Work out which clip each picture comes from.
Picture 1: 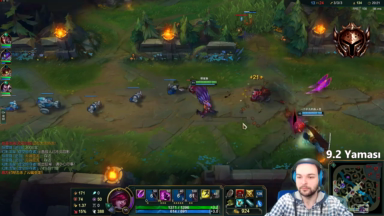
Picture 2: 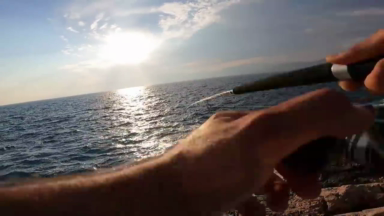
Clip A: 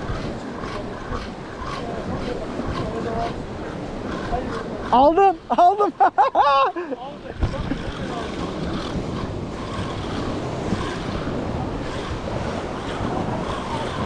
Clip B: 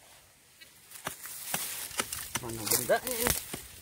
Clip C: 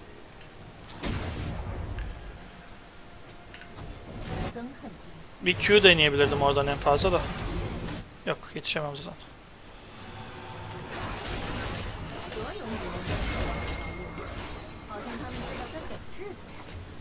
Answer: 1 C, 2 A